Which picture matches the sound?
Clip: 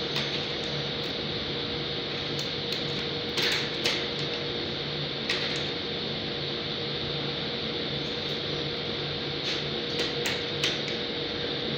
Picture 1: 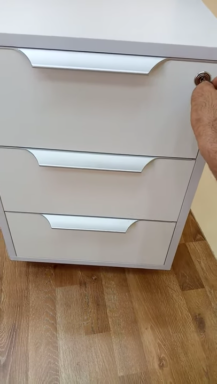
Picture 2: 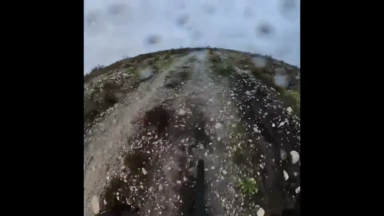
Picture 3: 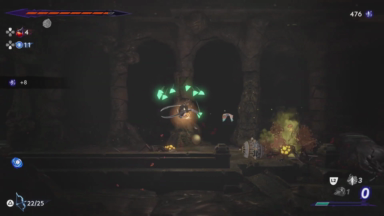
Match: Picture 1